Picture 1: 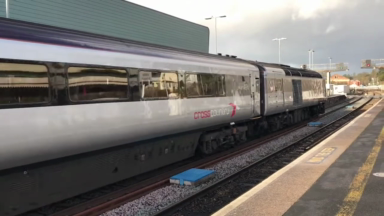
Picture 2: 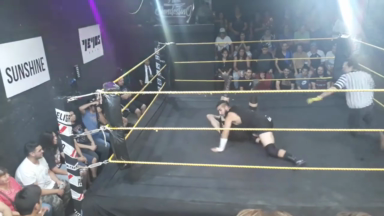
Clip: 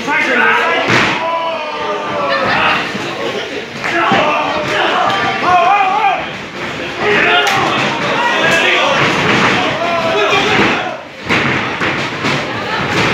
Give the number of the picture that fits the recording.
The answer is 2